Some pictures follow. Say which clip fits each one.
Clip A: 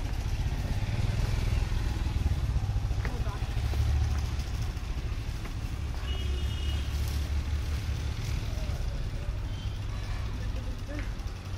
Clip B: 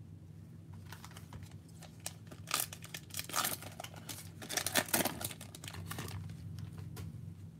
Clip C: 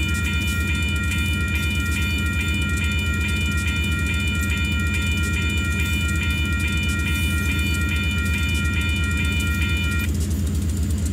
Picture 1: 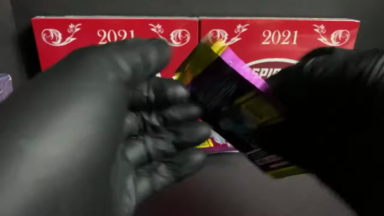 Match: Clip B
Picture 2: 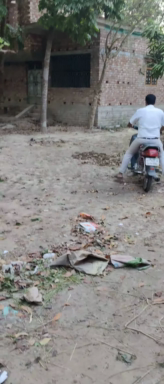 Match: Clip A